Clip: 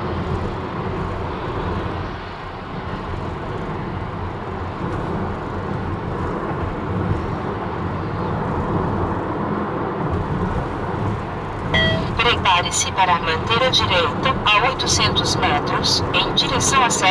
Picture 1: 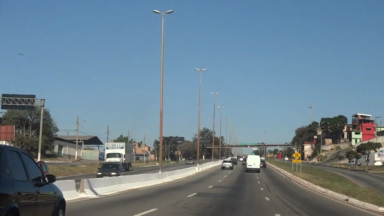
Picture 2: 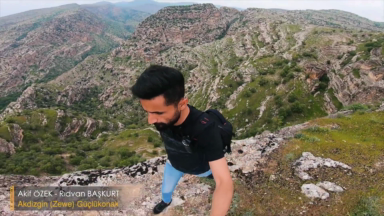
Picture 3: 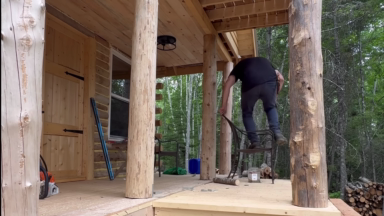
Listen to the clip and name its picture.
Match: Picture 1